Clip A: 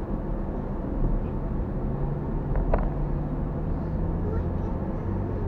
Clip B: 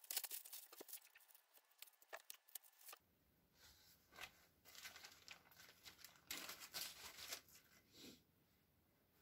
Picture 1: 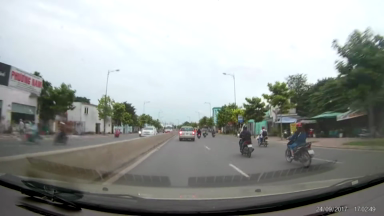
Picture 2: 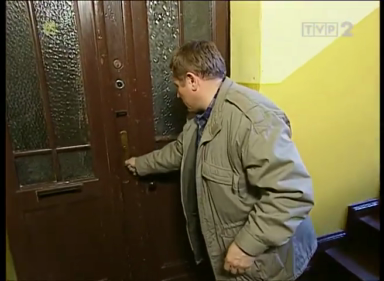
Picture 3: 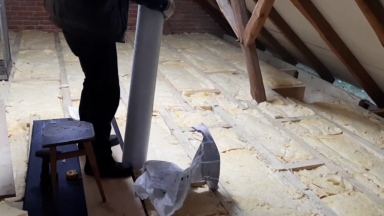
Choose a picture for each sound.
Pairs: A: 1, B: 3